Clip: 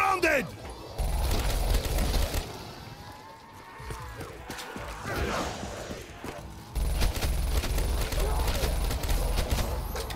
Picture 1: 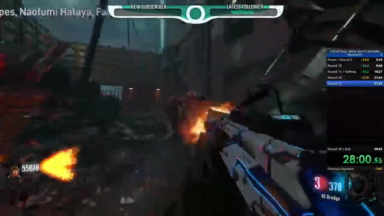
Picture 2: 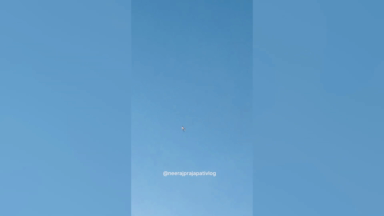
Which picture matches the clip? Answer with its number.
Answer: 1